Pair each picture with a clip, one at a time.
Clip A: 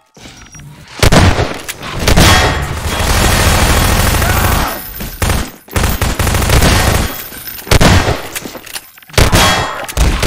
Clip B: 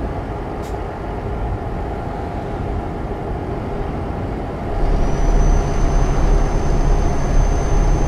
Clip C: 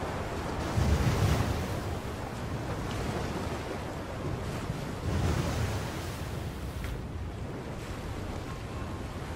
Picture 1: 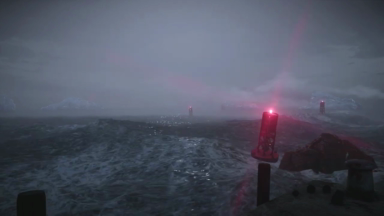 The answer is C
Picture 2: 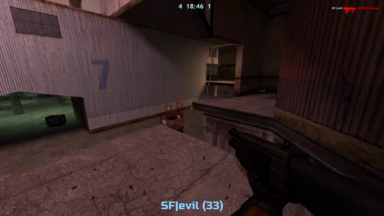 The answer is A